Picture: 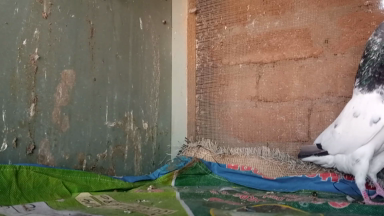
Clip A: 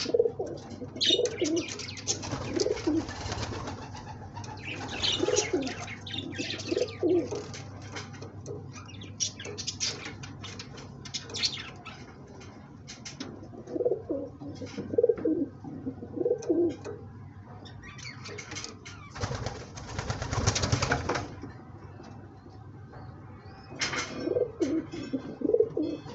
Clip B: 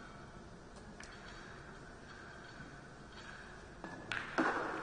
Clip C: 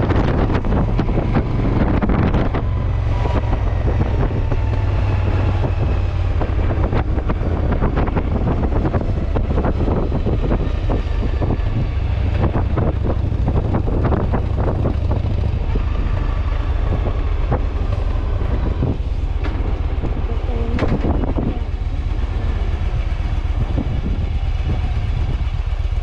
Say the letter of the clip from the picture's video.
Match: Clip A